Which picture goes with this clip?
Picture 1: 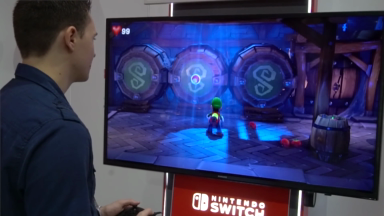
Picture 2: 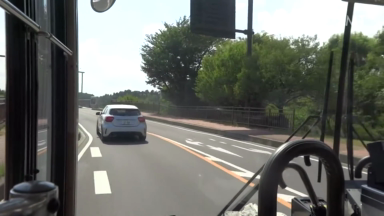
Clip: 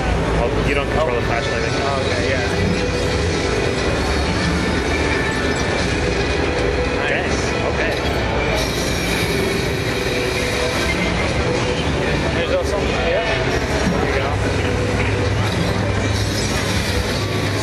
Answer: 1